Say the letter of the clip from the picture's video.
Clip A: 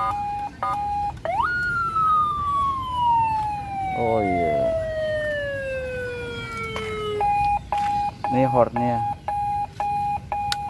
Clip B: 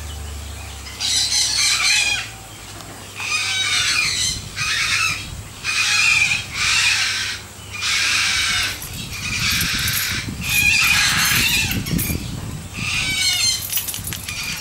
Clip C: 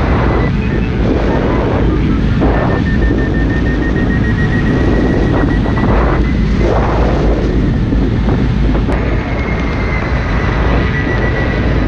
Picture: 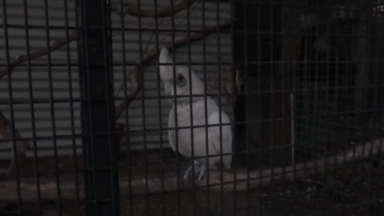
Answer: B